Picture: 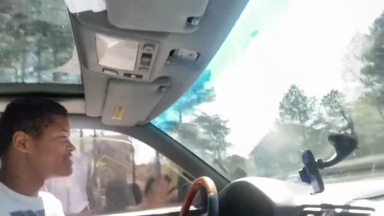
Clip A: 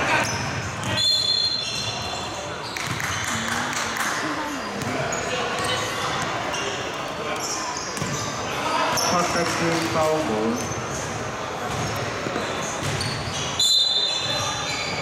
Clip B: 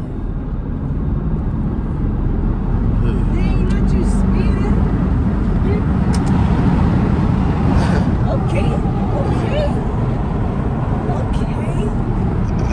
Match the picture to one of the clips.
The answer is B